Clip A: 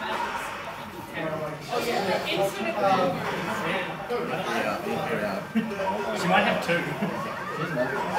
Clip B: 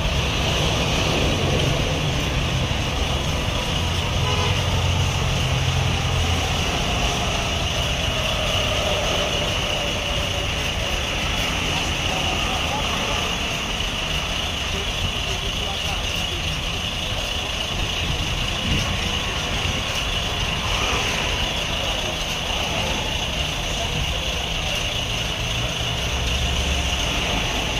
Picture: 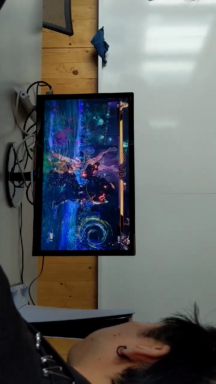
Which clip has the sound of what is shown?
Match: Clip A